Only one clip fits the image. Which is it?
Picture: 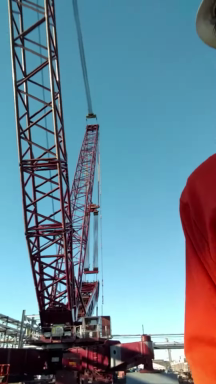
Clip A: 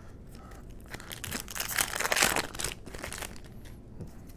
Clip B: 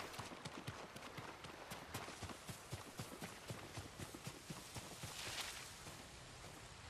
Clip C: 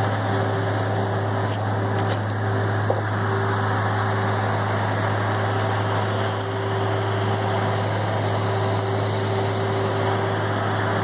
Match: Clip C